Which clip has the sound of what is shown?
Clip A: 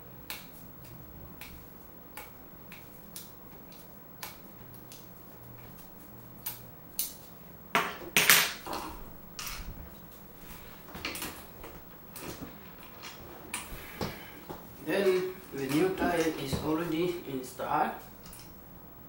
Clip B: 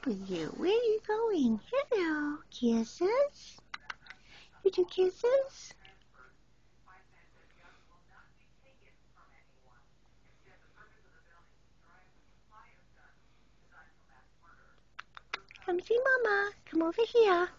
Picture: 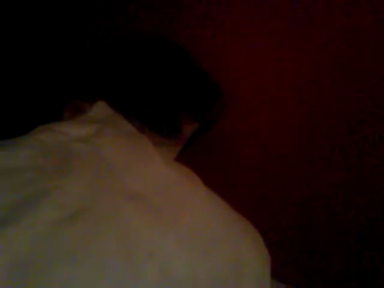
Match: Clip B